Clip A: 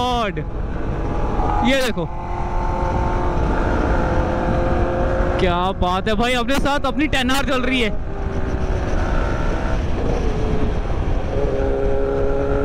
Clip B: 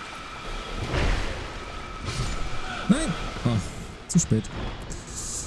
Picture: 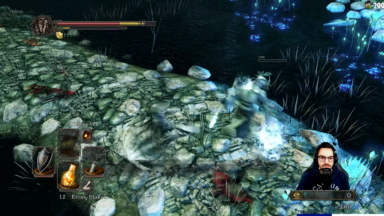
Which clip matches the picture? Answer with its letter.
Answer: B